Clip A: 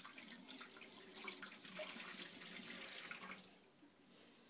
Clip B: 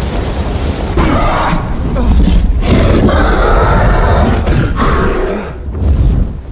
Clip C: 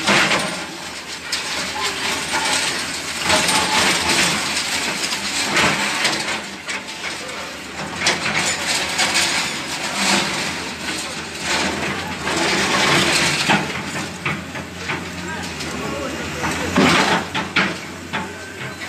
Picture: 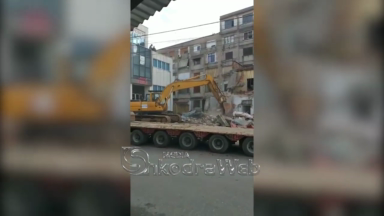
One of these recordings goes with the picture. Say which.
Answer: C